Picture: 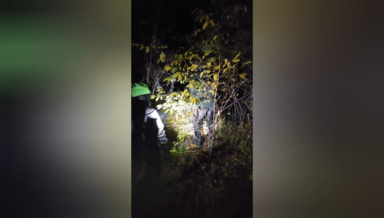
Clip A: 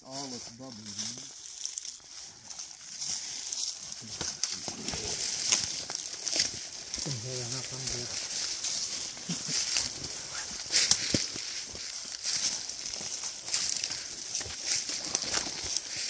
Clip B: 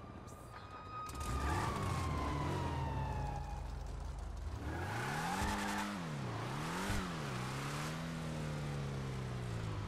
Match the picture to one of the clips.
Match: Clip A